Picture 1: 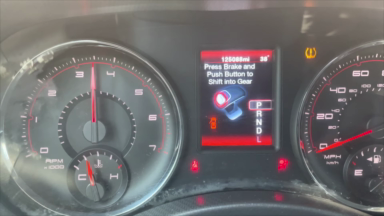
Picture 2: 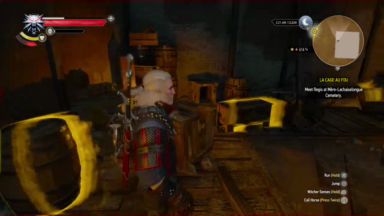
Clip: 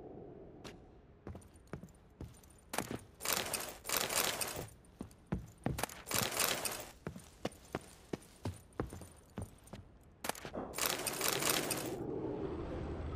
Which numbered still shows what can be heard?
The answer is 2